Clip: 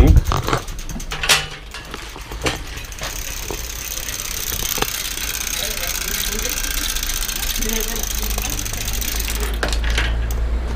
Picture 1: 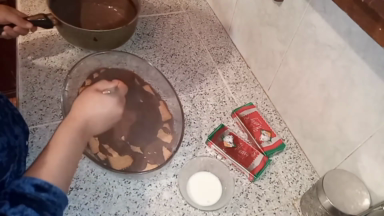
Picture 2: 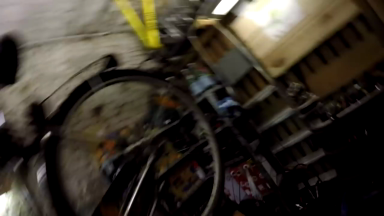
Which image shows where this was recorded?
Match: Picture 2